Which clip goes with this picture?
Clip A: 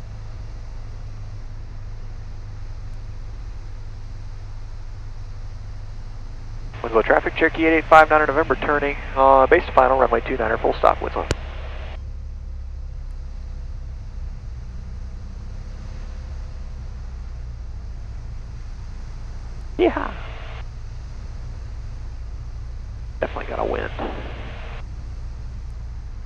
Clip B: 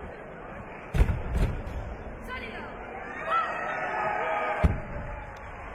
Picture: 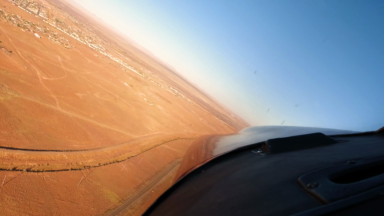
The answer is A